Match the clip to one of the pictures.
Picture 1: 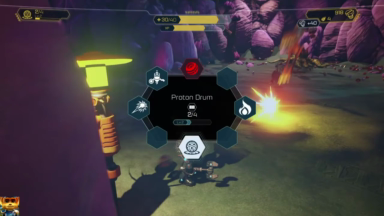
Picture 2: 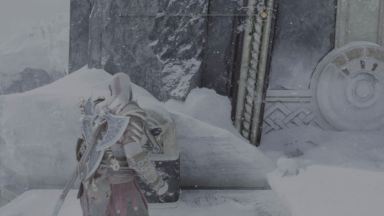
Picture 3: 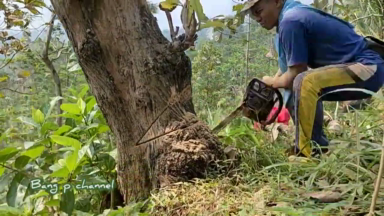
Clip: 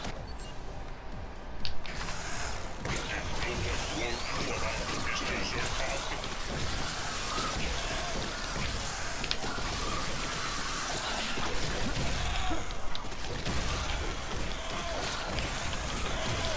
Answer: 1